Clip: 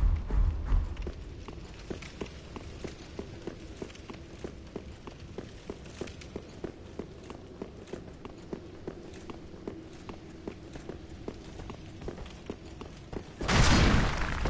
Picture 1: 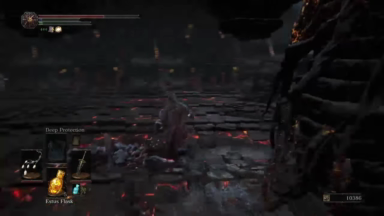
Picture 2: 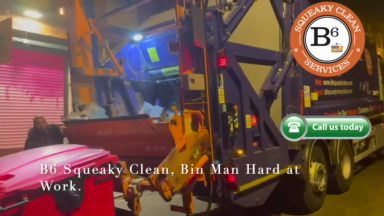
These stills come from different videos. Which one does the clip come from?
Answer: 1